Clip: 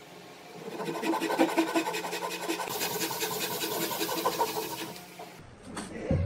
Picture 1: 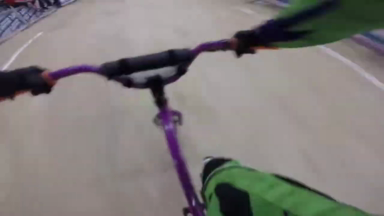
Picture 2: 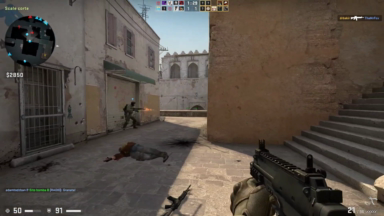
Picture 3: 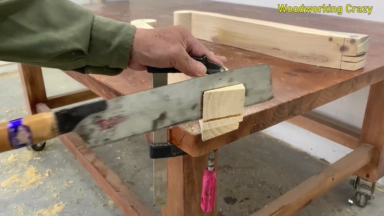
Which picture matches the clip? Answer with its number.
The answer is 3